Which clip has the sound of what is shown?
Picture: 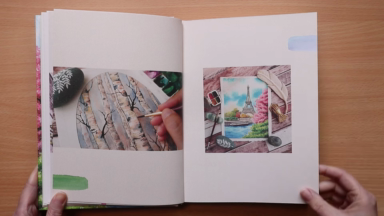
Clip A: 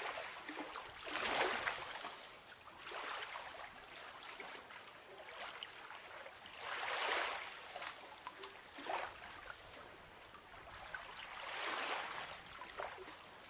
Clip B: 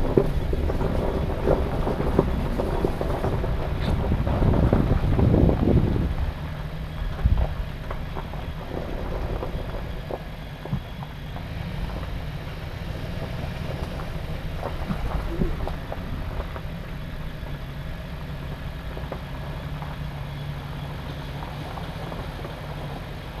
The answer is A